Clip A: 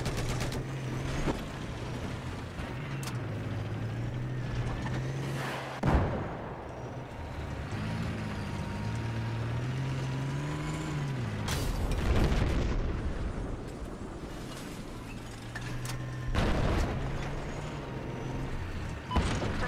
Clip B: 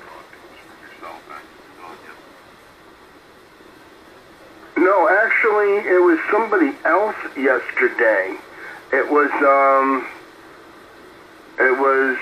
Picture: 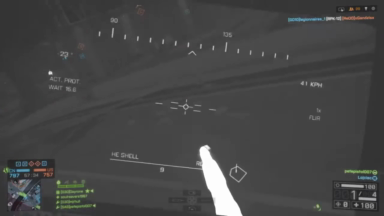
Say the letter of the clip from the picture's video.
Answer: A